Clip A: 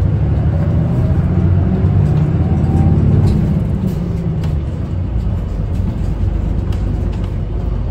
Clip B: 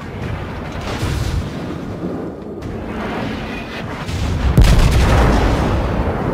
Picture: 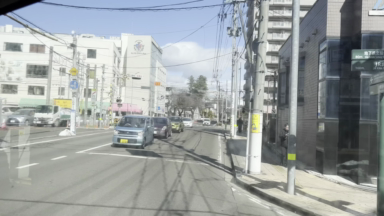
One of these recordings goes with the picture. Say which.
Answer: A